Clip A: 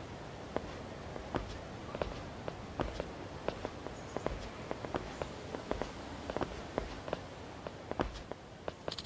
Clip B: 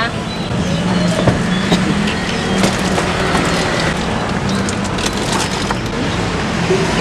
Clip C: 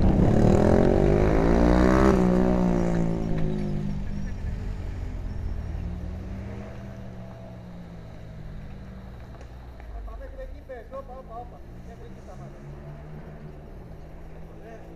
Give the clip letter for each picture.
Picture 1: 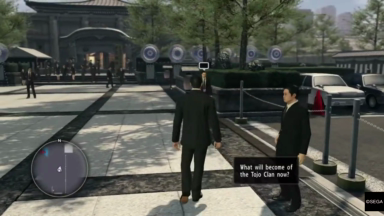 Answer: A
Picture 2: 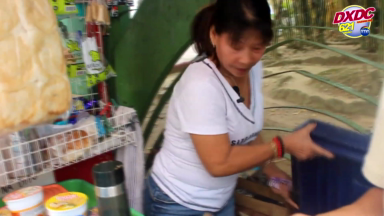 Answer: B